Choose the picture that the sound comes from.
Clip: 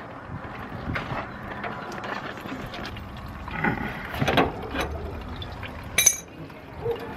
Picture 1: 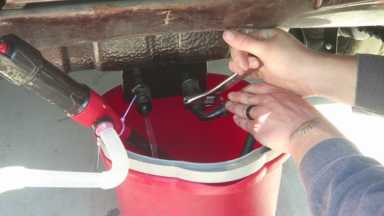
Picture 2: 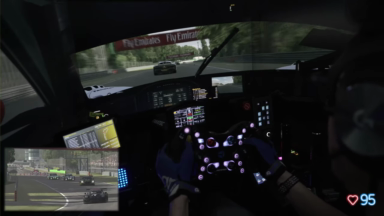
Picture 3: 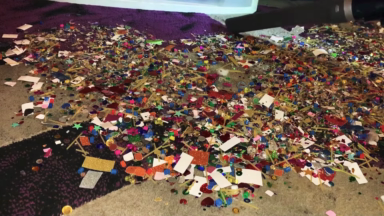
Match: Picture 1